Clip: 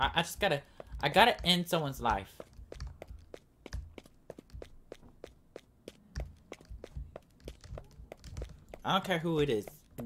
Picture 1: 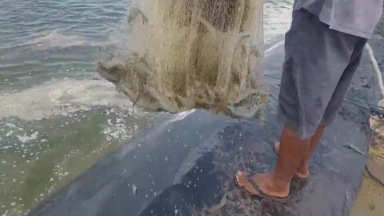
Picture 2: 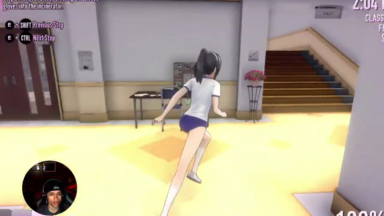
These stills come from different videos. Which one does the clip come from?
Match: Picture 2